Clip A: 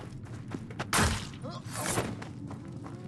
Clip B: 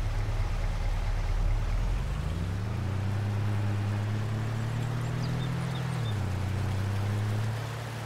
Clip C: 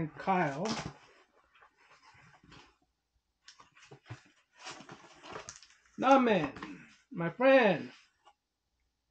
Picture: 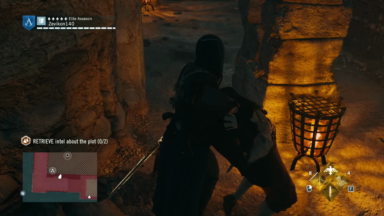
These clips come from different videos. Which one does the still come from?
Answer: A